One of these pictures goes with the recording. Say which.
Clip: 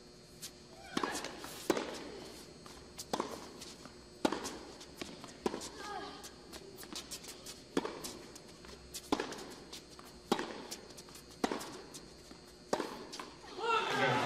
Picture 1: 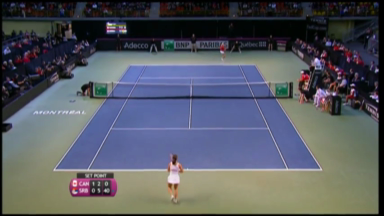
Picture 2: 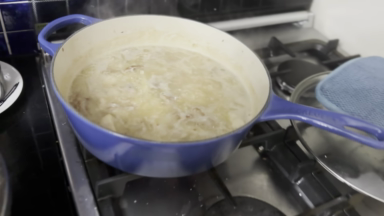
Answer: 1